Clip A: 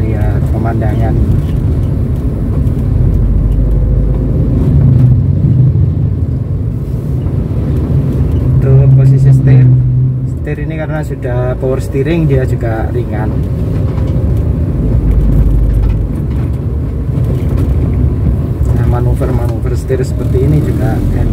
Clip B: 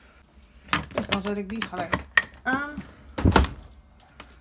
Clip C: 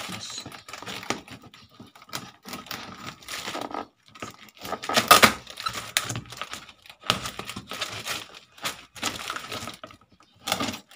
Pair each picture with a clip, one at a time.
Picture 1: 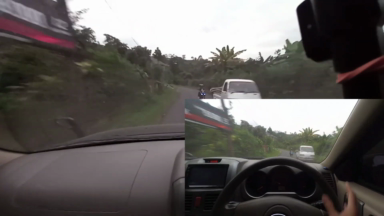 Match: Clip A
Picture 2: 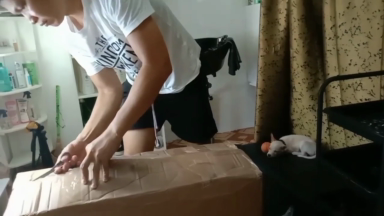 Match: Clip C